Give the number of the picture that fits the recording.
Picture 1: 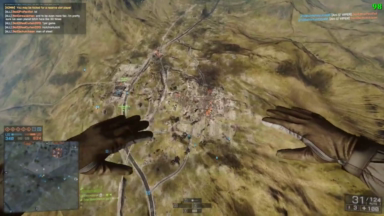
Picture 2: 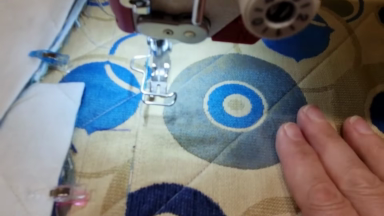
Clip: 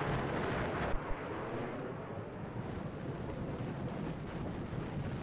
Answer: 1